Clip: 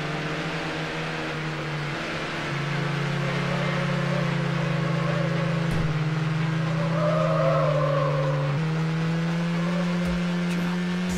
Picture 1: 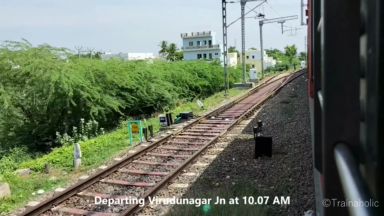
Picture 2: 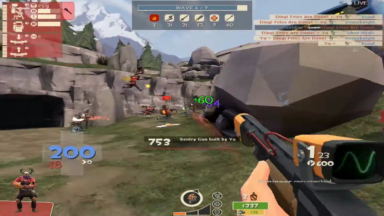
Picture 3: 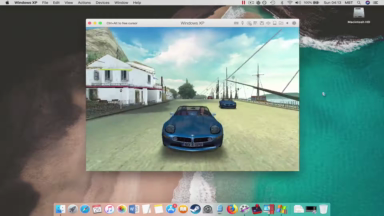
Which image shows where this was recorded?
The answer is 3